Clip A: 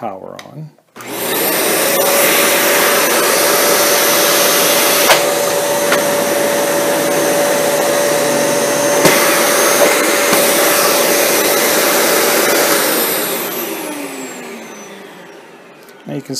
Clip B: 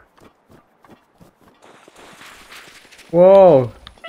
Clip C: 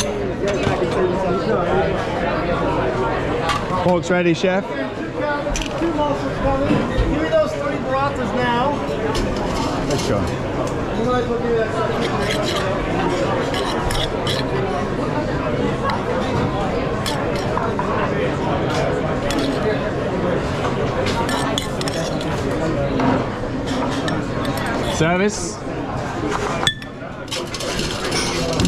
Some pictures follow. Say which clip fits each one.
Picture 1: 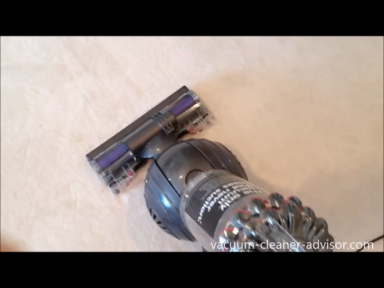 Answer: A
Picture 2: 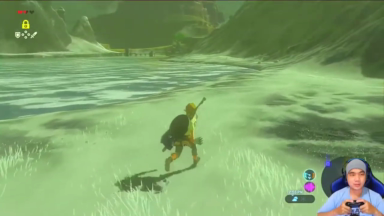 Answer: B